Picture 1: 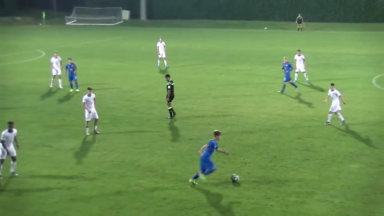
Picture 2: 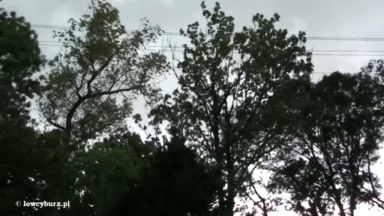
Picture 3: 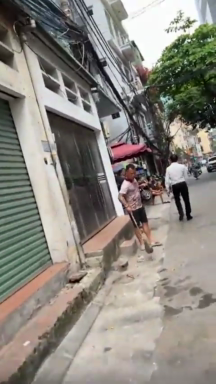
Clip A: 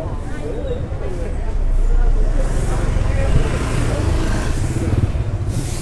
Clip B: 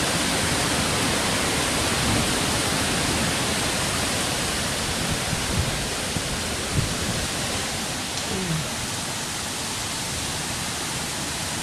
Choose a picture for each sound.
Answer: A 3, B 2